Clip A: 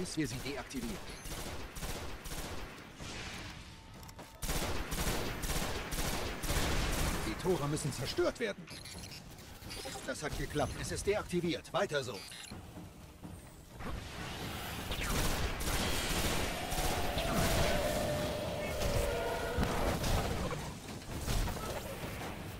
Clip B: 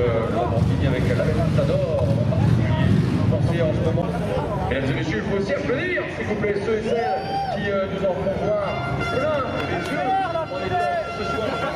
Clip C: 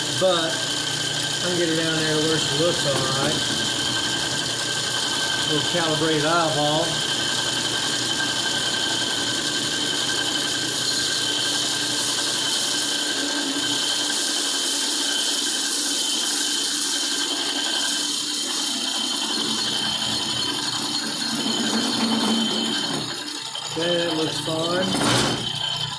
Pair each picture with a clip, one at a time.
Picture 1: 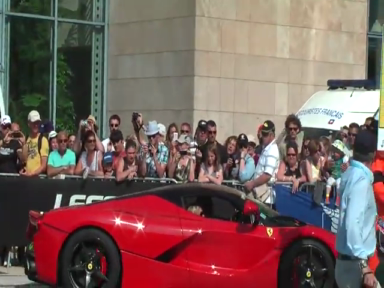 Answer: B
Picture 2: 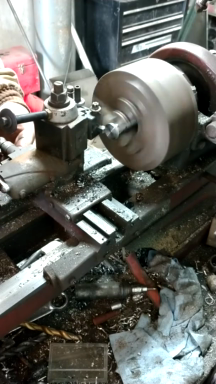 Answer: C